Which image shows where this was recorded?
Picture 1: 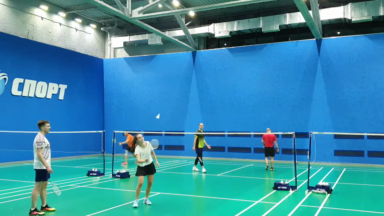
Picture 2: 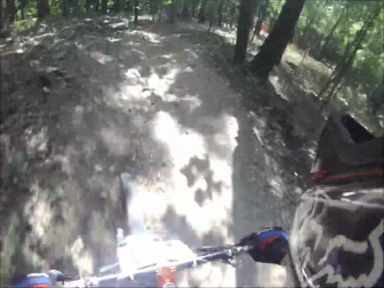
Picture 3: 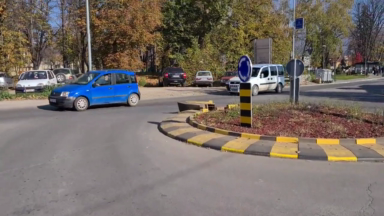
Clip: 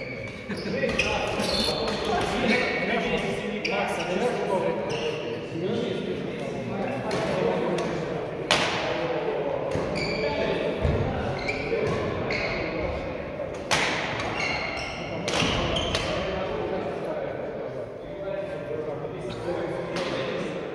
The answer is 1